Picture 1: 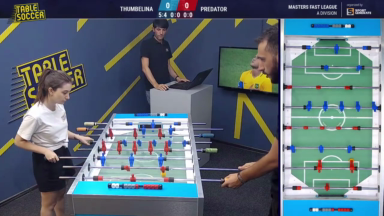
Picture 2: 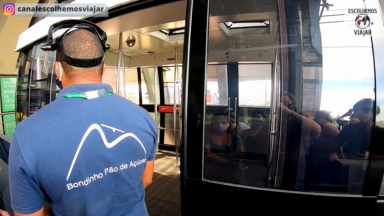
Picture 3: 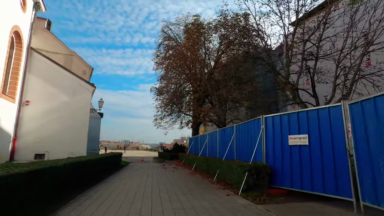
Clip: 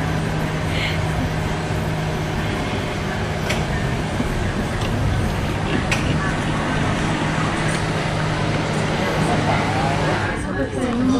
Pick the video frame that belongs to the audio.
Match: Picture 2